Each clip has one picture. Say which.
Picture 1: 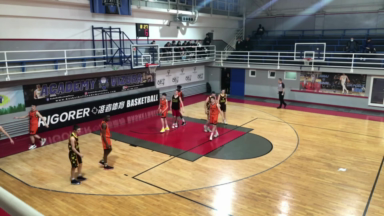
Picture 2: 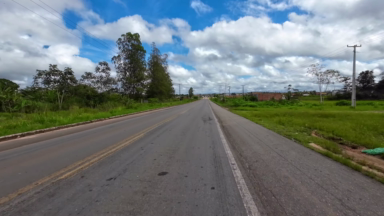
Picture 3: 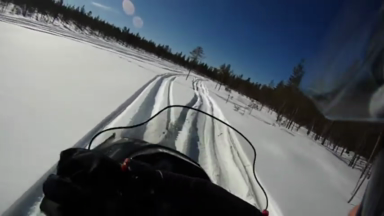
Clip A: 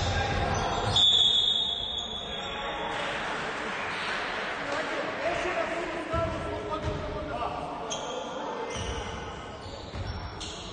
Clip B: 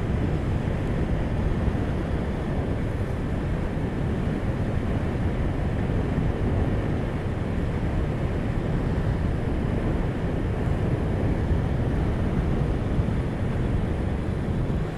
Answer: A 1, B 2